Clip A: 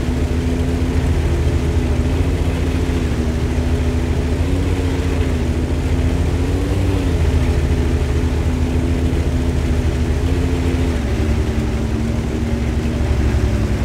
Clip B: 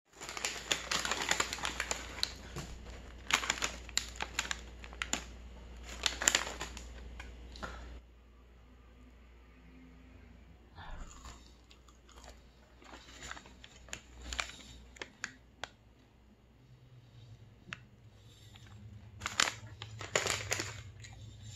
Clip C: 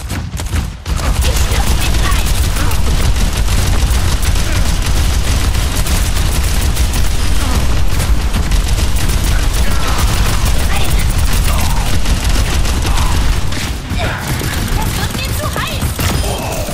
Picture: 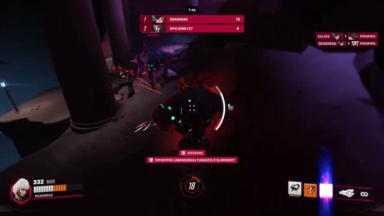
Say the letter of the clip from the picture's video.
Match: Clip C